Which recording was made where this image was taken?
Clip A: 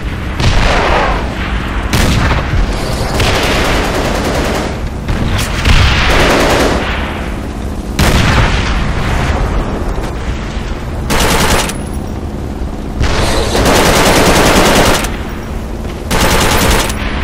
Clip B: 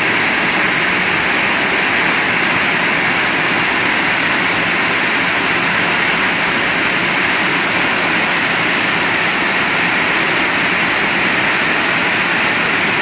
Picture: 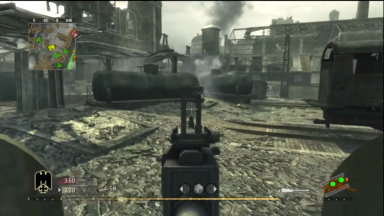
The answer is A